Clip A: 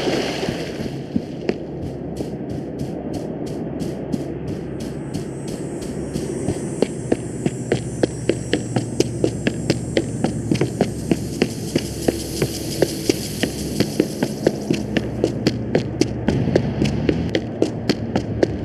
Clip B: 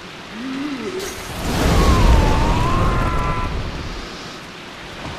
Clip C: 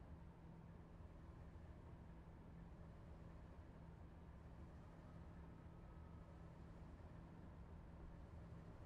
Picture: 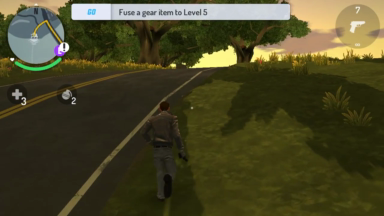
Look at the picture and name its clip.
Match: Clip A